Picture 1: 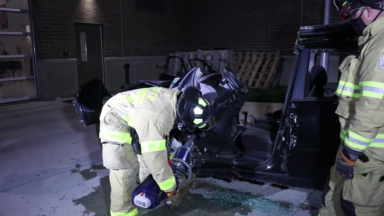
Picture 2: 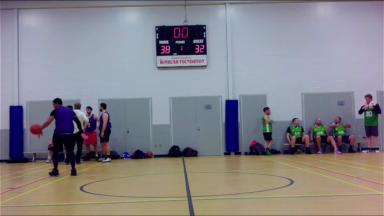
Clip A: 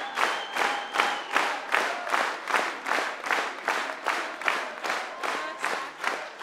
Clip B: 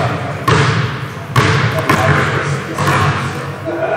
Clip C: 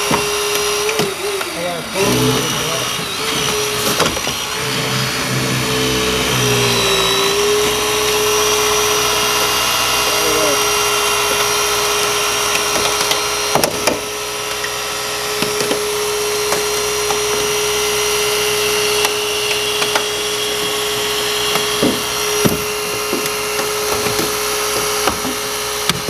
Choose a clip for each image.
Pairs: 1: C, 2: B